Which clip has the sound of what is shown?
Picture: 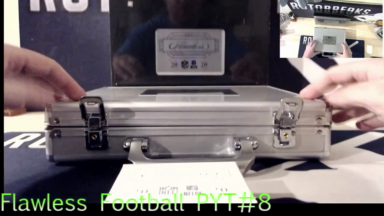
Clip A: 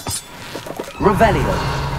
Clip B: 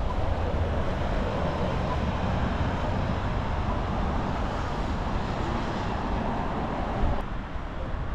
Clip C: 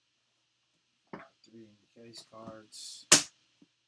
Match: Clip C